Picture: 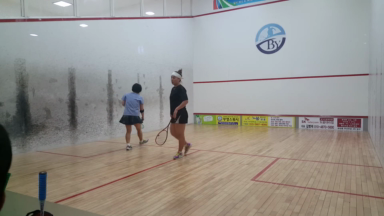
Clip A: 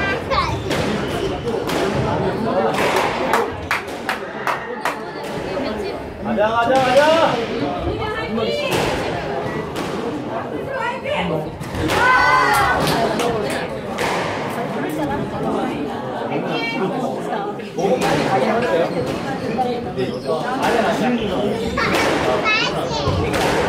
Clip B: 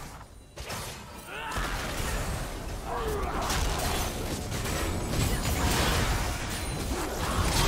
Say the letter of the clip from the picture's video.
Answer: A